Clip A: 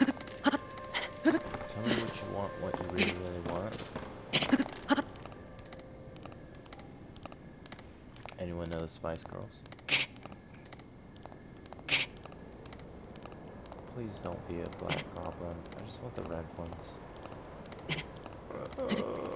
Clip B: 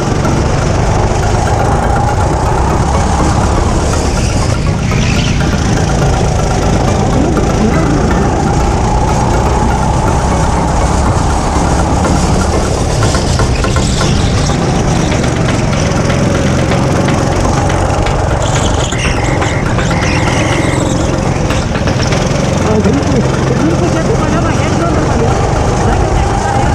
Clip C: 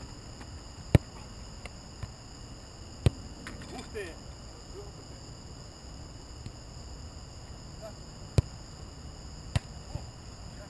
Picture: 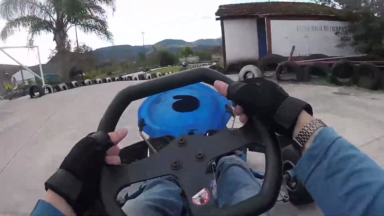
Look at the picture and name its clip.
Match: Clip B